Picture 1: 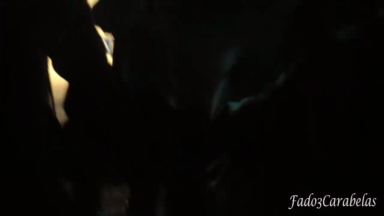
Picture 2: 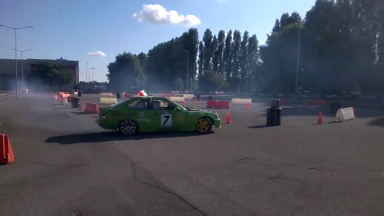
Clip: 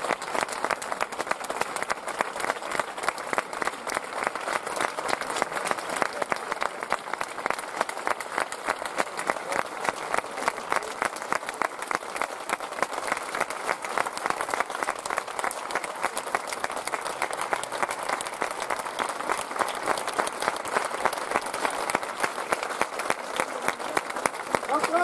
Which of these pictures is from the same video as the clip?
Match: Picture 1